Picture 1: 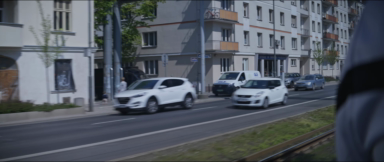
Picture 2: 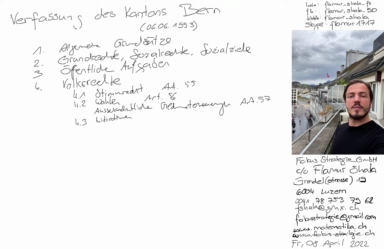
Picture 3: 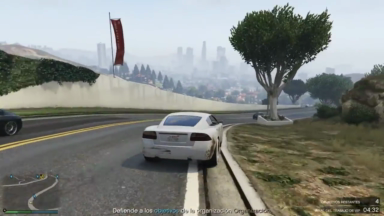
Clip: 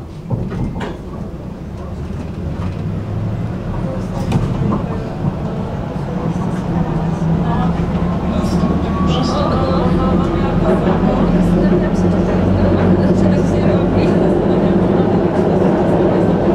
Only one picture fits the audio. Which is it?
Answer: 1